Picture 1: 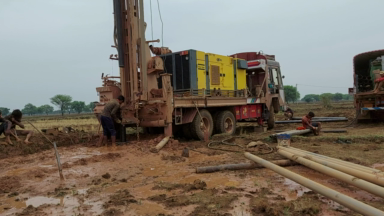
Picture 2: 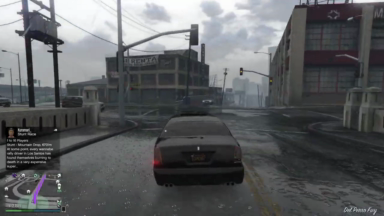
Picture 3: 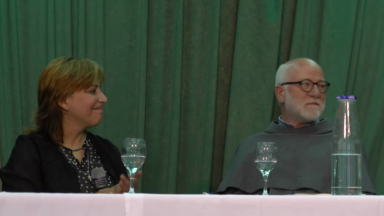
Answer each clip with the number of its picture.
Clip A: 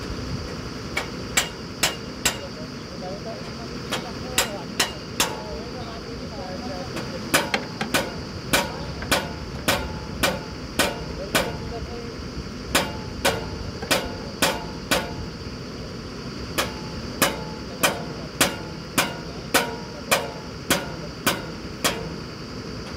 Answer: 1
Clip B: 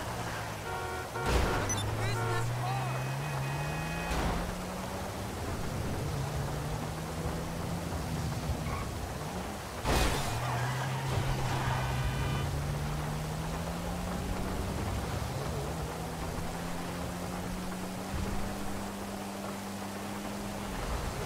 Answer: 2